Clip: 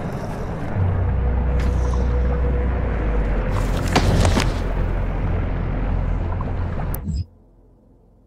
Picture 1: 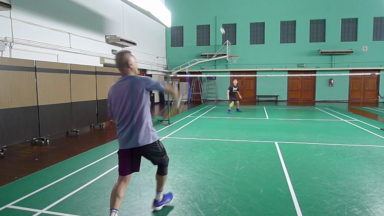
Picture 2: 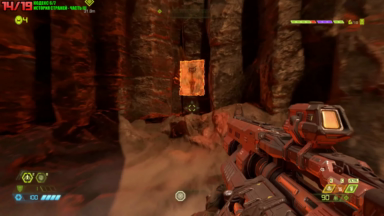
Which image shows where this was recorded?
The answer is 2